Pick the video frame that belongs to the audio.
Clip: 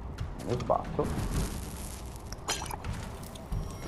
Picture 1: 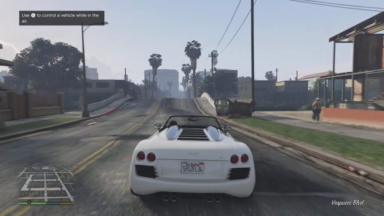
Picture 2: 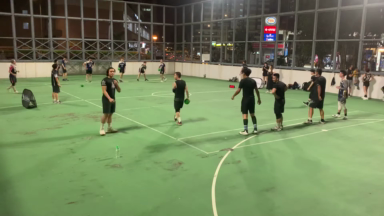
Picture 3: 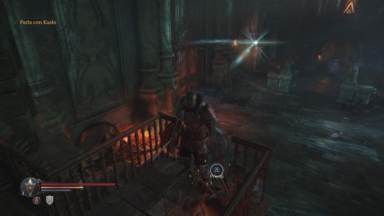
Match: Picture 3